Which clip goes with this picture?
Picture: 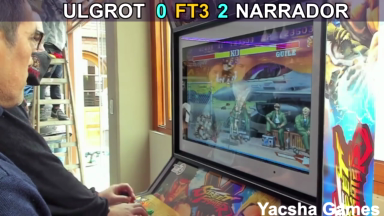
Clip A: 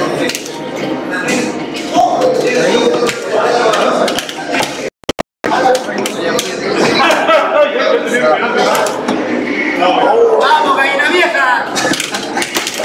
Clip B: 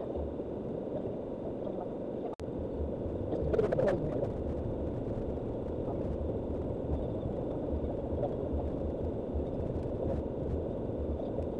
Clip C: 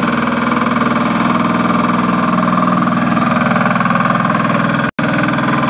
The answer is A